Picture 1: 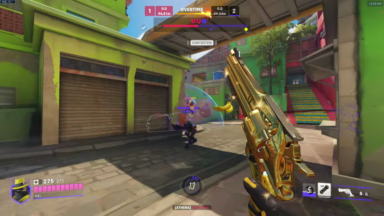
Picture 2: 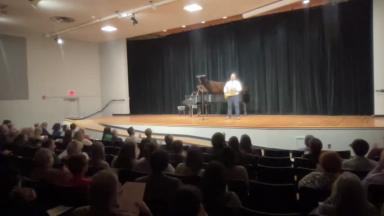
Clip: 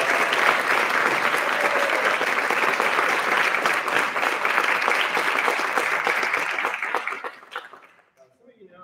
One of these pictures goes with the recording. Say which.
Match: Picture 2